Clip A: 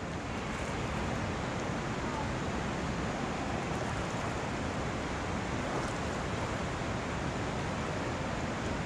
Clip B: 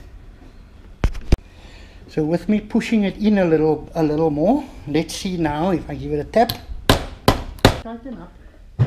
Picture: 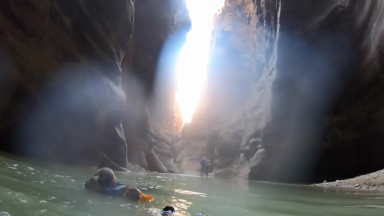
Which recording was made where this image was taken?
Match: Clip A